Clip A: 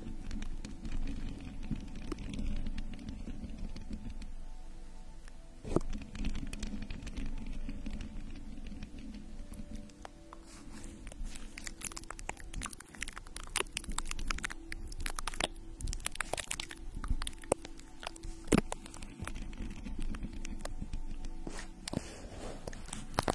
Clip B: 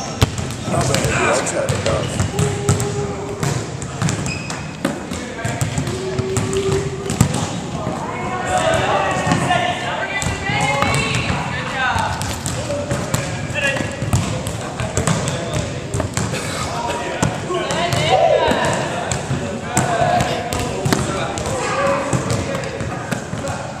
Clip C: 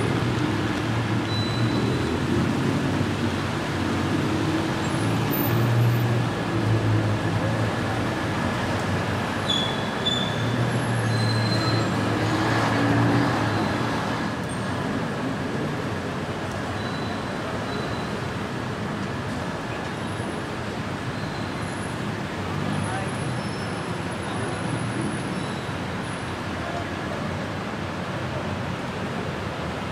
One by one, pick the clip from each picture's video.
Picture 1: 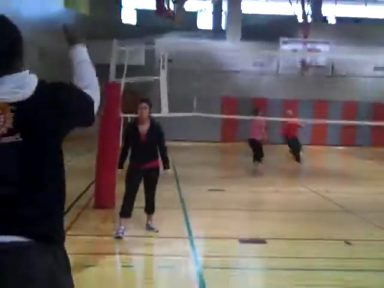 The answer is B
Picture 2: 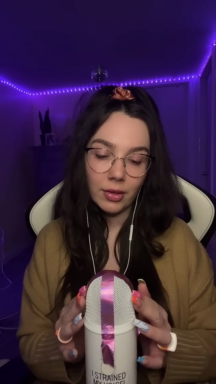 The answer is A